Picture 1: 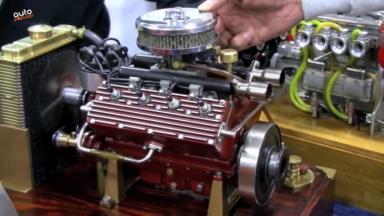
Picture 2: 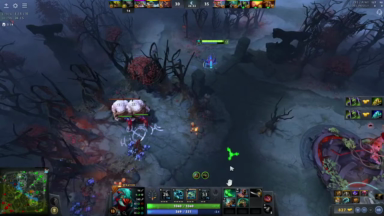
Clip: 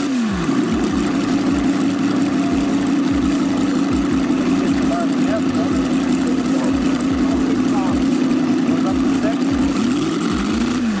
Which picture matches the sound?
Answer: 1